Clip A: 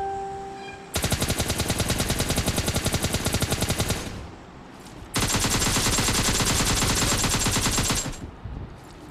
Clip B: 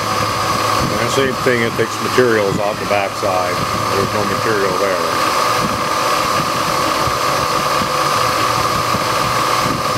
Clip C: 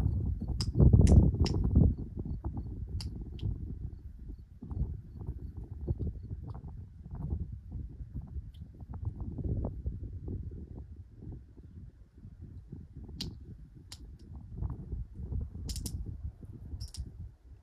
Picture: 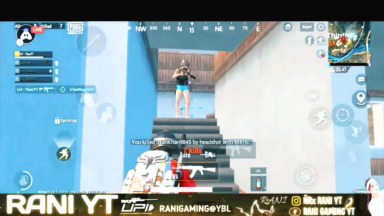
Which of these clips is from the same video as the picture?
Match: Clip A